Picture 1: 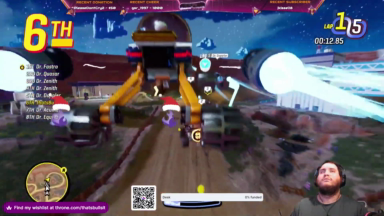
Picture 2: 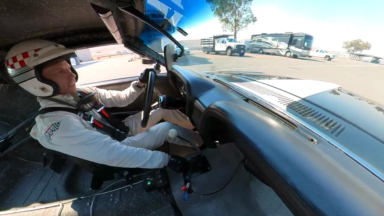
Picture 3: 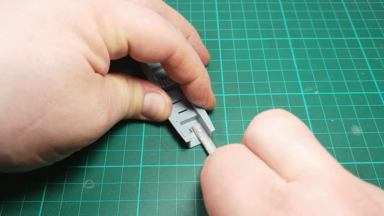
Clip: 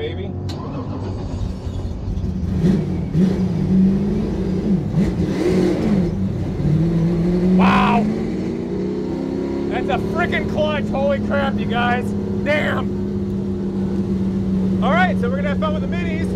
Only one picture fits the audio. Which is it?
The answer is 2